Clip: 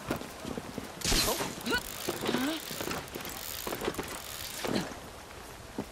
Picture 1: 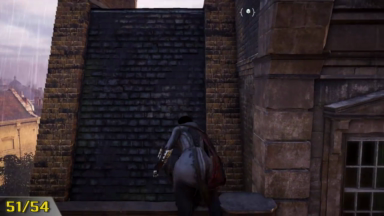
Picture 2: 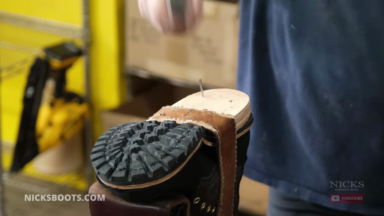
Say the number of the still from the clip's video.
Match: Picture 1